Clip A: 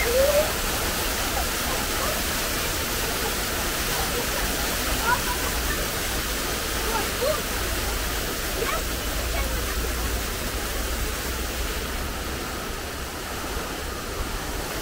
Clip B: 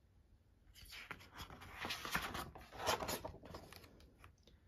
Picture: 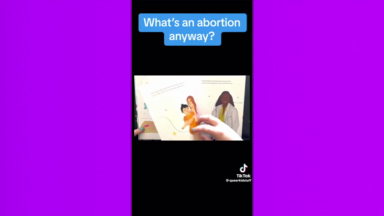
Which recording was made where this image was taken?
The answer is B